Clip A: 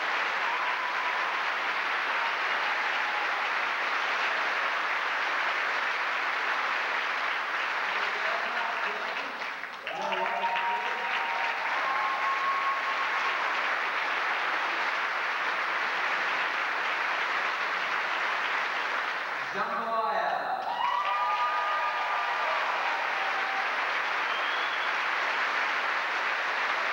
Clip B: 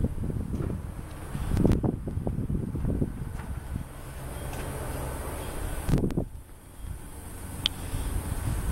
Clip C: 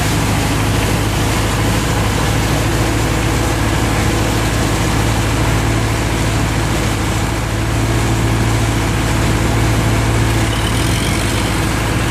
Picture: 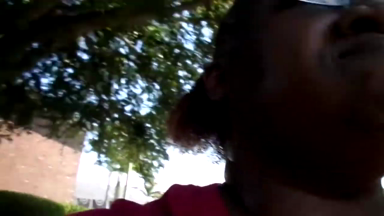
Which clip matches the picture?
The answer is B